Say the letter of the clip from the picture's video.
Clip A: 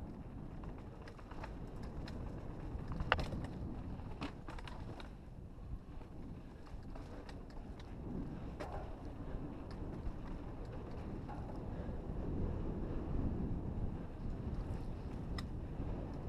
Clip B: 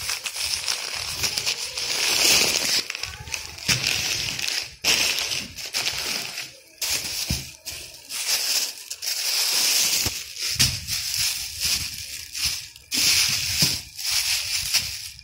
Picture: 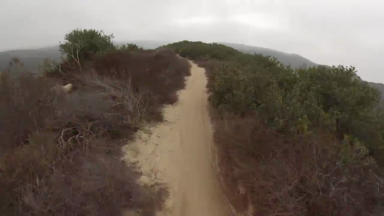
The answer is A